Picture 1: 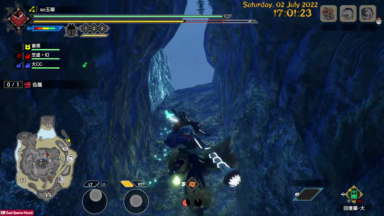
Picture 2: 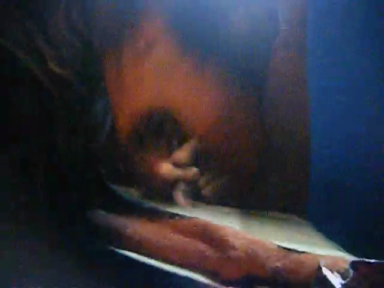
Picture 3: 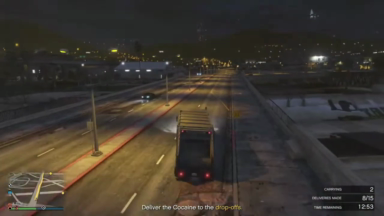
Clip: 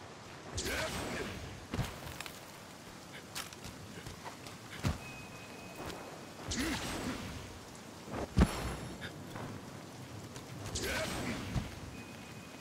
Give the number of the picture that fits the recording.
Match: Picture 1